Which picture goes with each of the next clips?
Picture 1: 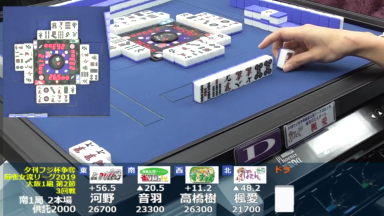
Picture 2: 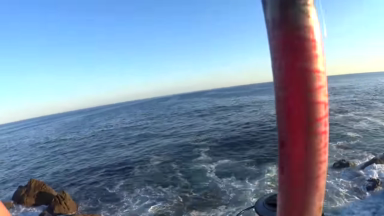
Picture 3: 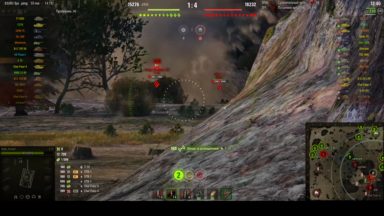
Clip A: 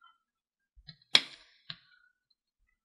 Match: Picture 1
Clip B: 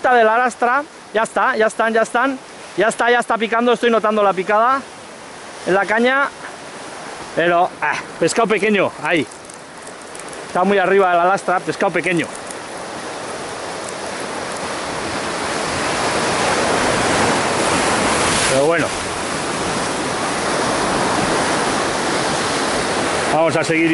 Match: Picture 2